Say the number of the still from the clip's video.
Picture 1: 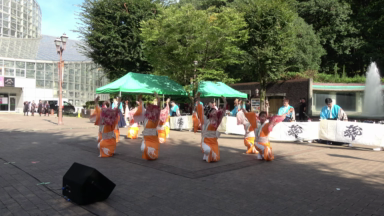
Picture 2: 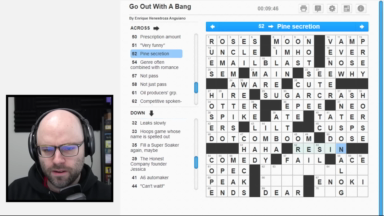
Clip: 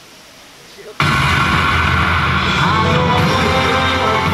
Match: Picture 1